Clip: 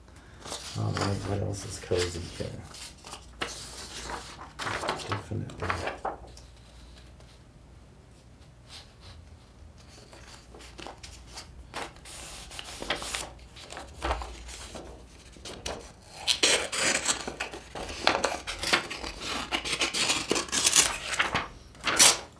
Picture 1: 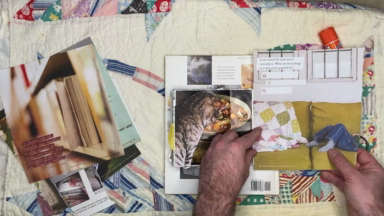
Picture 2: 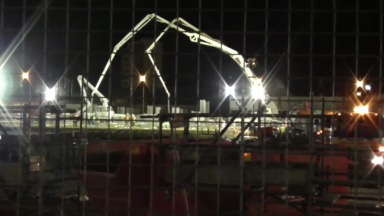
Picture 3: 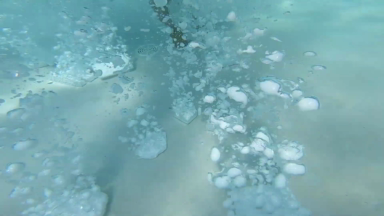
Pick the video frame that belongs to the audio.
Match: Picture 1